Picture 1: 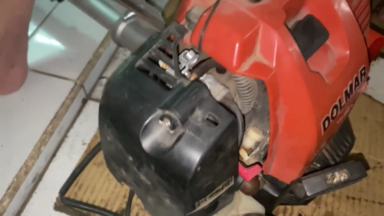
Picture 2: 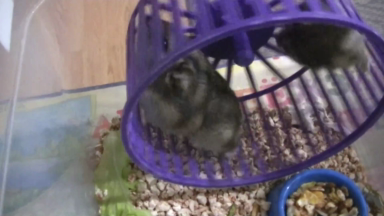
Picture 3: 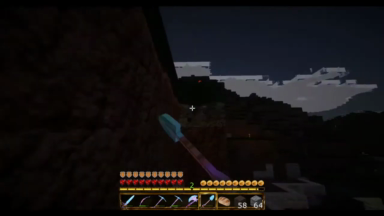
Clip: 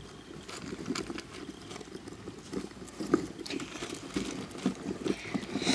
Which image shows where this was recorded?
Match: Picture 2